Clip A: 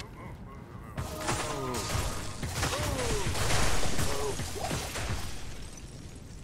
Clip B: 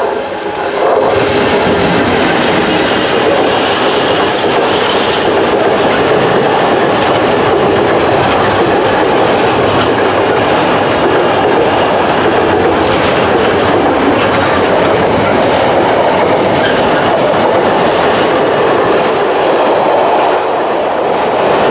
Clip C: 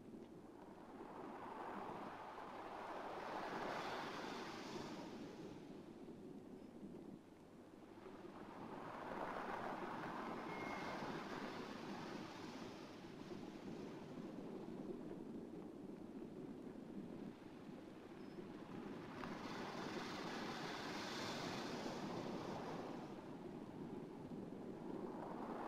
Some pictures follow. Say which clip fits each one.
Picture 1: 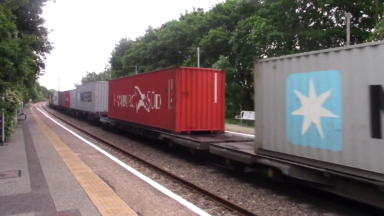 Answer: B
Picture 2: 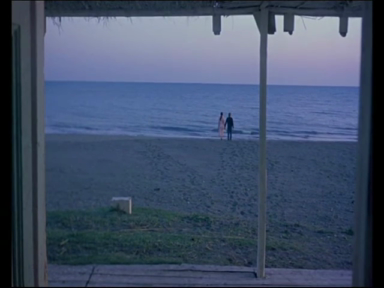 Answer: C